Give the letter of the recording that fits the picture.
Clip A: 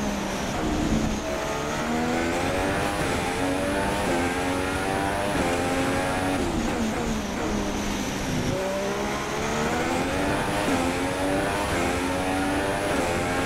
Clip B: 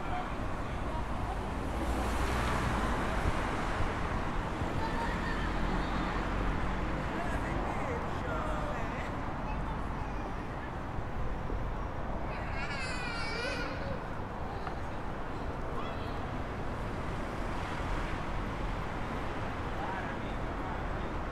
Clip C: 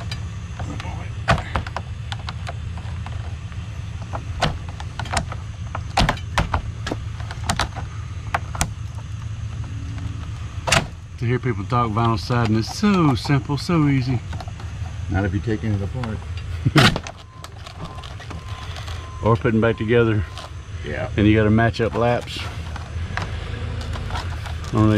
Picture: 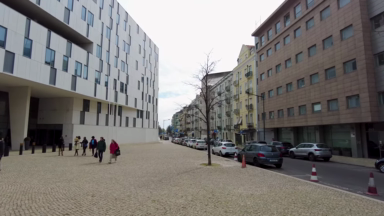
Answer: B